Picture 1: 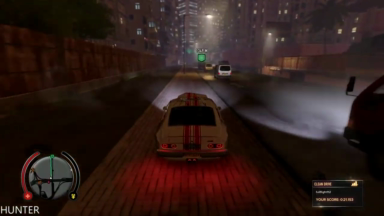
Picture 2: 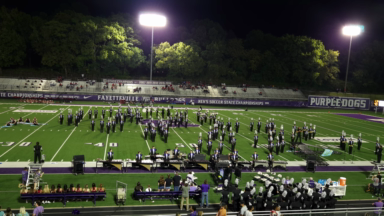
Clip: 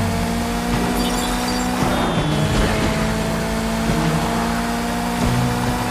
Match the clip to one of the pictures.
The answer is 1